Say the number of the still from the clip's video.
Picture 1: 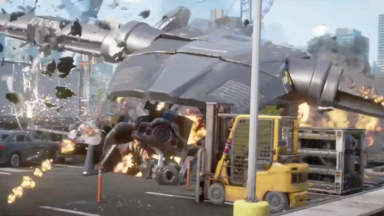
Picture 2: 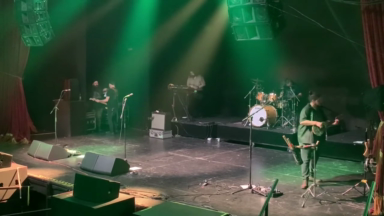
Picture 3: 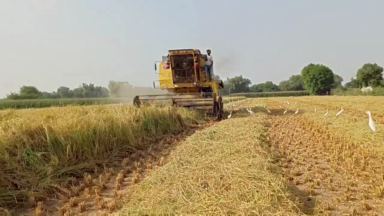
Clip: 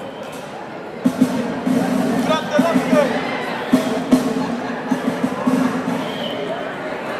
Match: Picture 2